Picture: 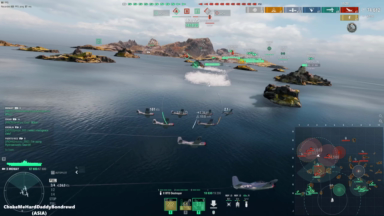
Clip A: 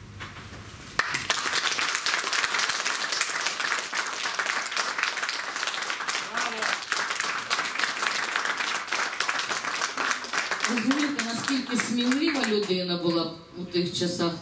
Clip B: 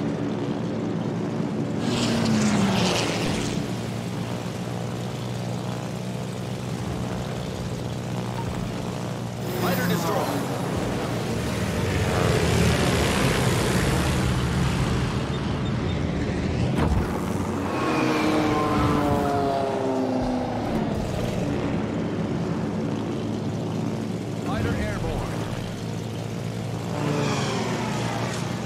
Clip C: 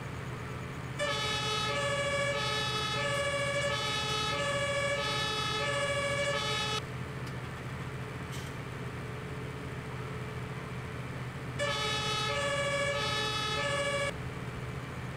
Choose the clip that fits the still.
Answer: B